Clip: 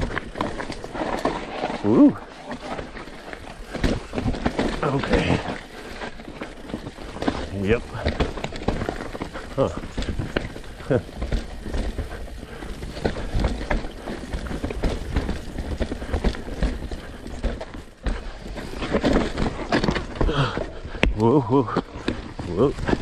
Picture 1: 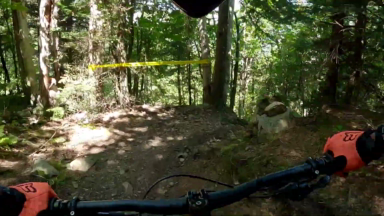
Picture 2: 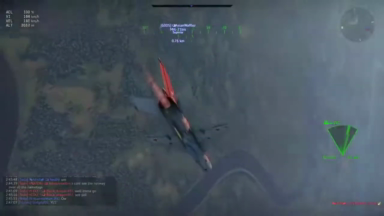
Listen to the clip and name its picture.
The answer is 1